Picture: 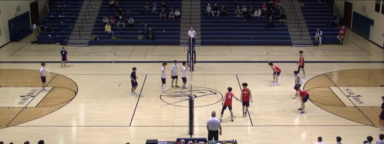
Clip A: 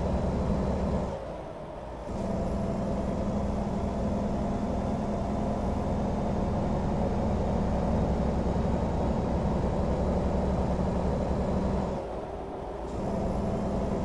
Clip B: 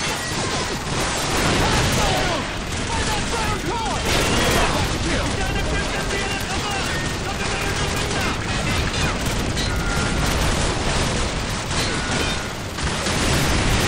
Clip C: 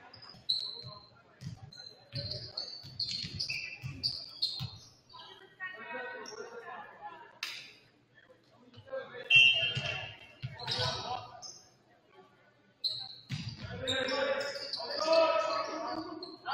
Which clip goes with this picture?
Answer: C